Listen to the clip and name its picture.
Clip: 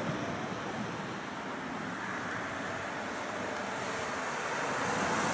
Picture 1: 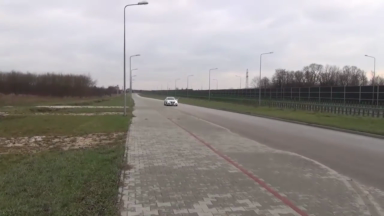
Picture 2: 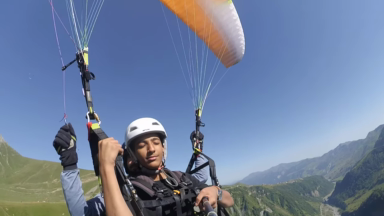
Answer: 1